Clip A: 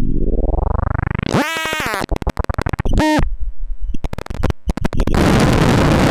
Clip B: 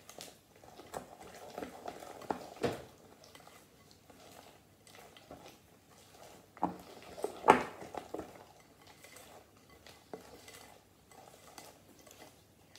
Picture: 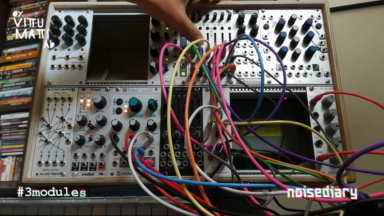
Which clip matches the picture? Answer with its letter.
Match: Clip A